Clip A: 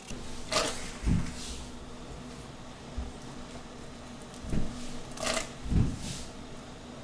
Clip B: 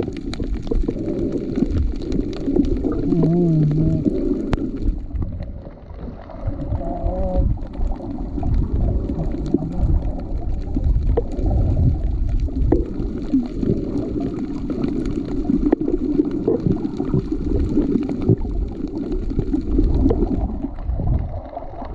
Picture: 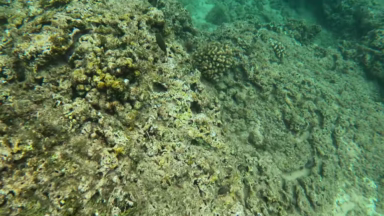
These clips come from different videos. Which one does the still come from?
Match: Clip B